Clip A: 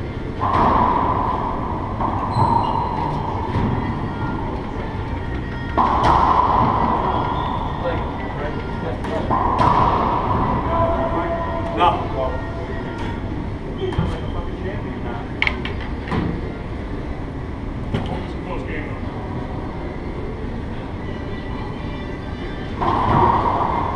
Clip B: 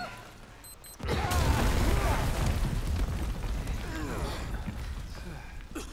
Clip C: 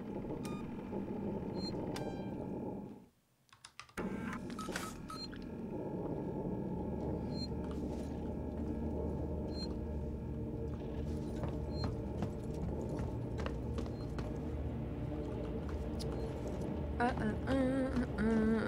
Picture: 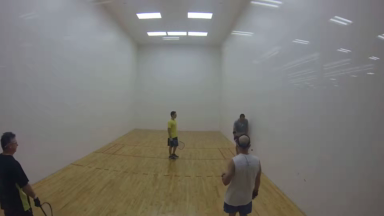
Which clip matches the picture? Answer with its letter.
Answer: A